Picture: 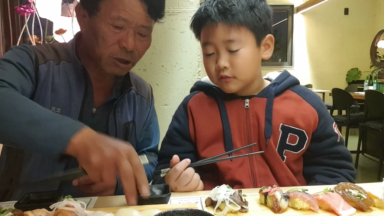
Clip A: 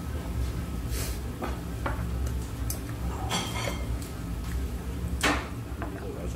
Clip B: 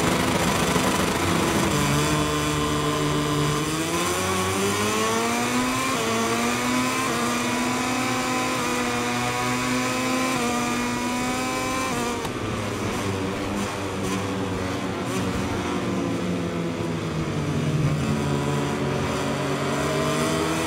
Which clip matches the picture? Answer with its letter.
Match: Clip A